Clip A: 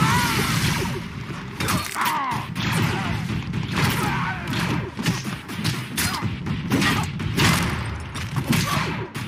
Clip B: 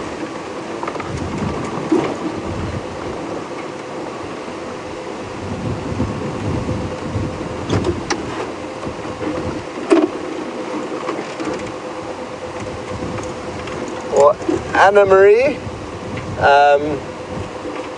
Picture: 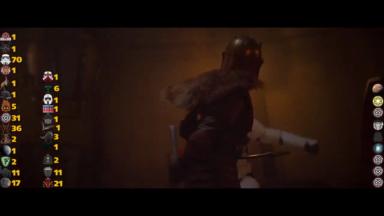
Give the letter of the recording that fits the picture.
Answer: A